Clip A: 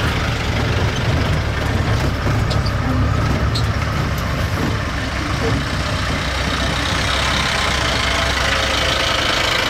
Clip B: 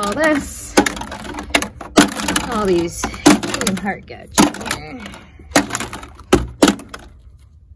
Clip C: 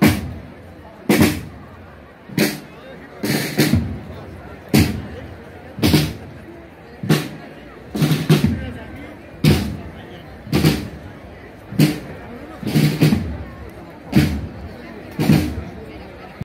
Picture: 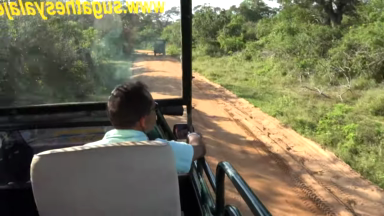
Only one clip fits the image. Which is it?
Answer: A